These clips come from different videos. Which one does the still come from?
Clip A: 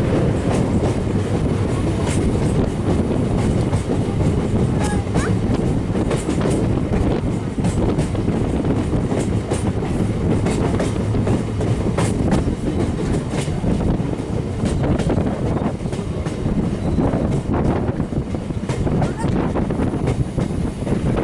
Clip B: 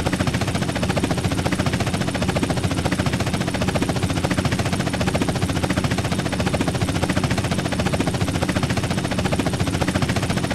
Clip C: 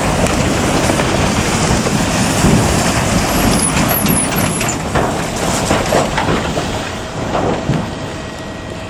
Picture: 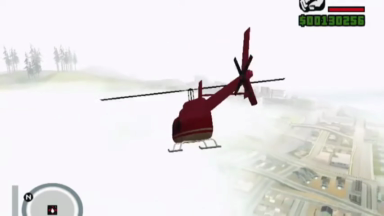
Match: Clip B